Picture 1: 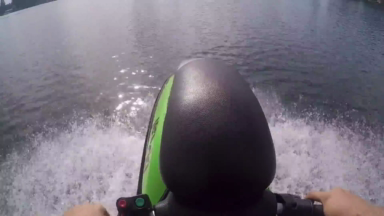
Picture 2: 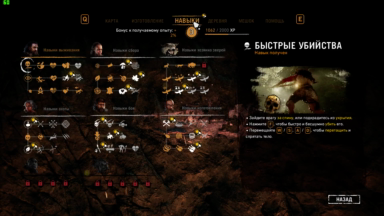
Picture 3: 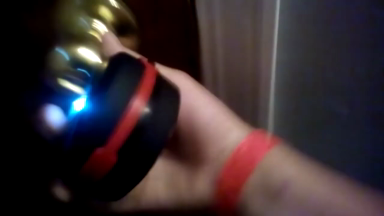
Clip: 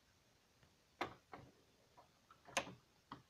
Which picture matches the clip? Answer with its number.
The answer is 3